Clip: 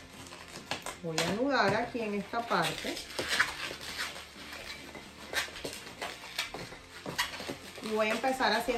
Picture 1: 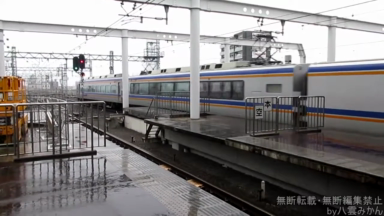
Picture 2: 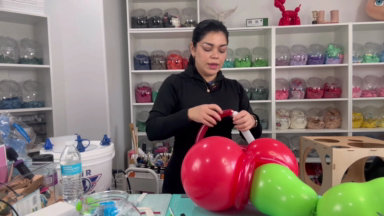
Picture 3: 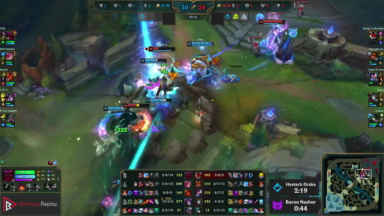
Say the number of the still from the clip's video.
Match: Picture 2